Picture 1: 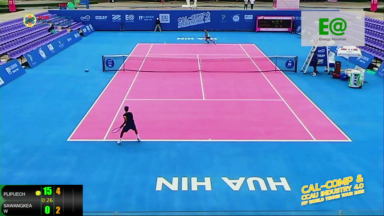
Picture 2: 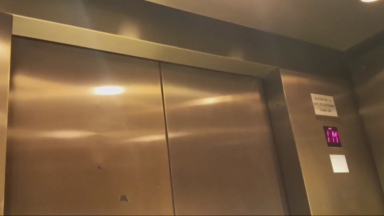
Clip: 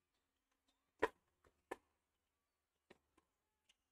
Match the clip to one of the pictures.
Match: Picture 1